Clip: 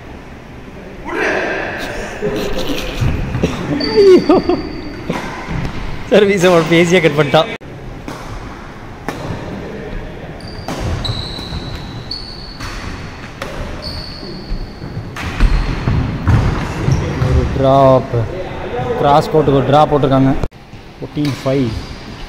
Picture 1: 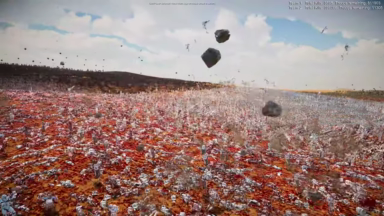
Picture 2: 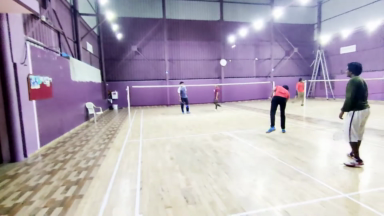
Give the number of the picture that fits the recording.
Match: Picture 2